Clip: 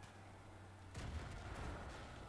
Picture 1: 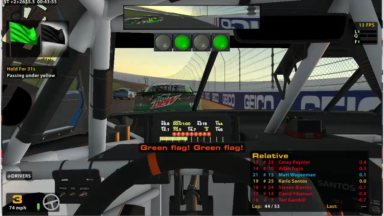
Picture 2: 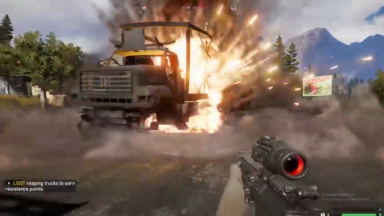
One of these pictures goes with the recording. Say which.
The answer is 2